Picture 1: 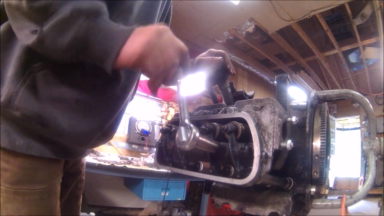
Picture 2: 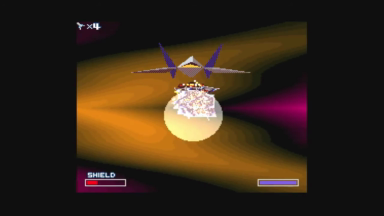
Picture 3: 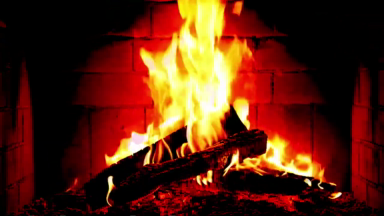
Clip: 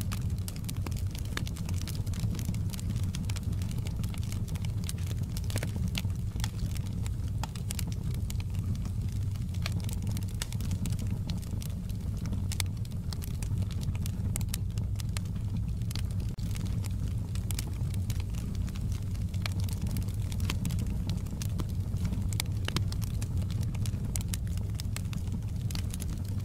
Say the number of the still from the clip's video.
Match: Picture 3